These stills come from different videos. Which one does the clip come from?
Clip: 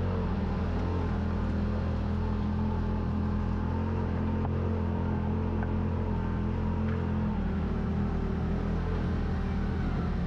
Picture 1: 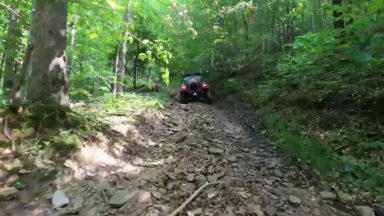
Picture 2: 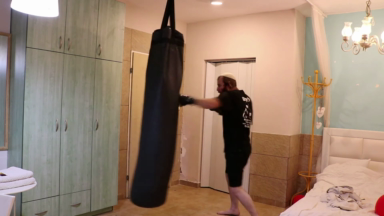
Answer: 1